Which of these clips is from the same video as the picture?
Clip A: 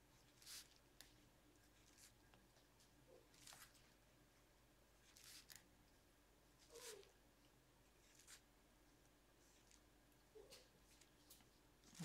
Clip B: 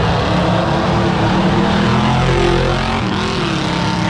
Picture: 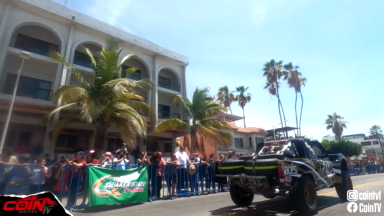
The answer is B